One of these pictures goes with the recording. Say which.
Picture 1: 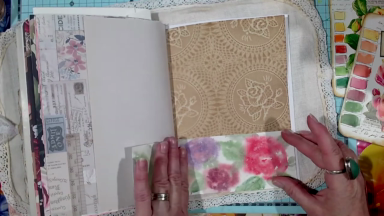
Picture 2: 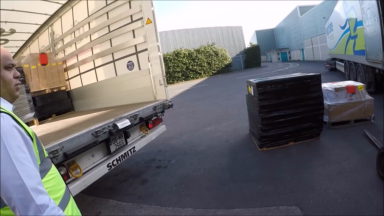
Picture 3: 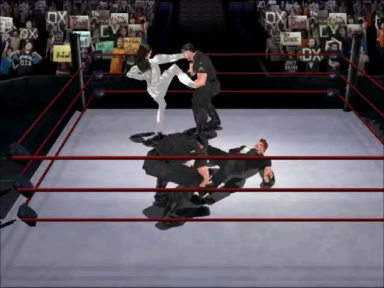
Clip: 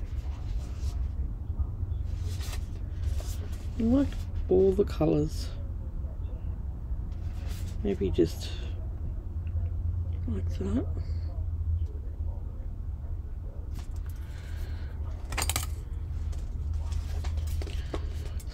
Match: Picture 1